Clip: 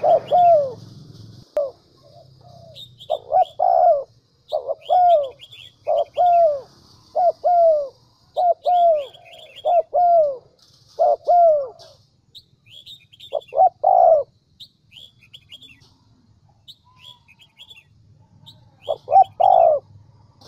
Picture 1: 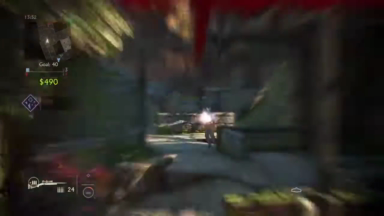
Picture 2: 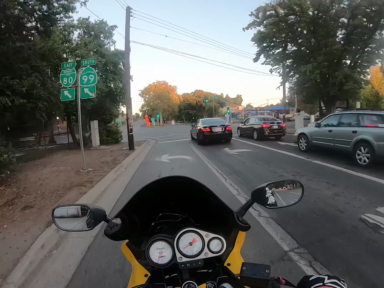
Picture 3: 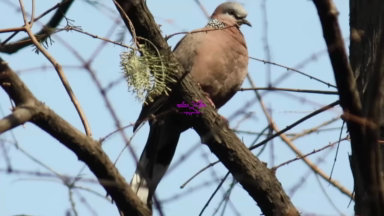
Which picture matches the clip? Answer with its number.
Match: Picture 3